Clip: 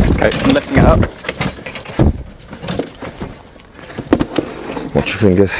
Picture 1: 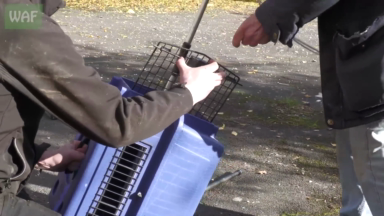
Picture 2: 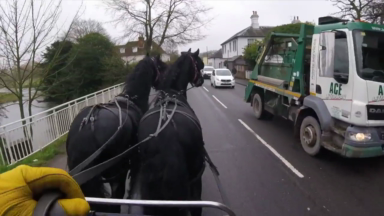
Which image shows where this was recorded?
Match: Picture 1